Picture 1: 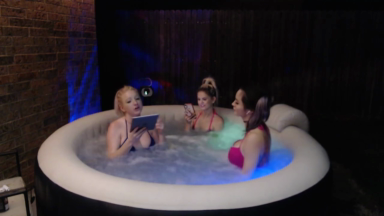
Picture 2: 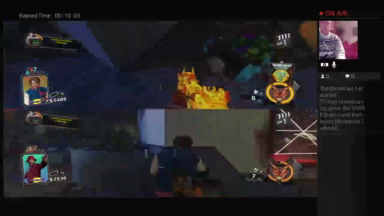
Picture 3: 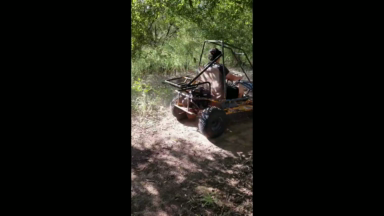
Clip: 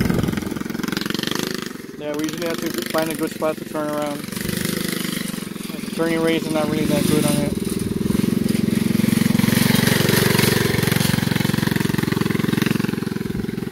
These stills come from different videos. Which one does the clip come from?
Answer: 3